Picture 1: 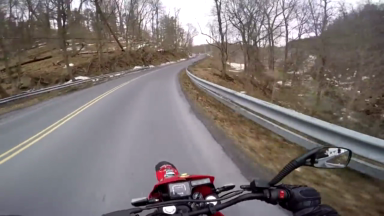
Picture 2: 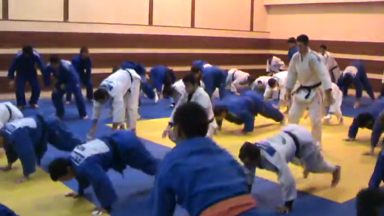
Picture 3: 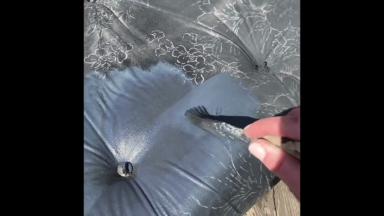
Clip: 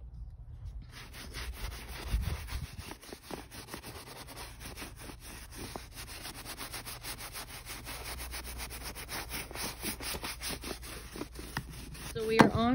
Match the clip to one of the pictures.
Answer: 3